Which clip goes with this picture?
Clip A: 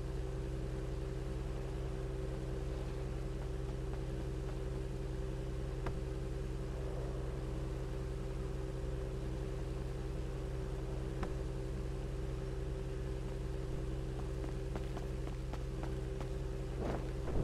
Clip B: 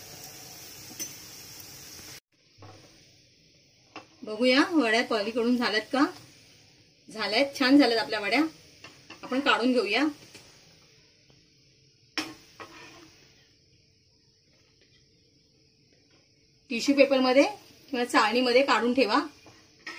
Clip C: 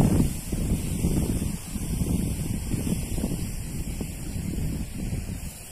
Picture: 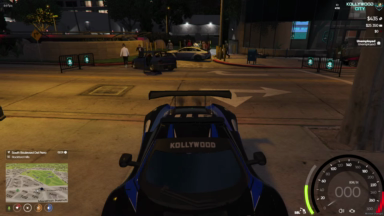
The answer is A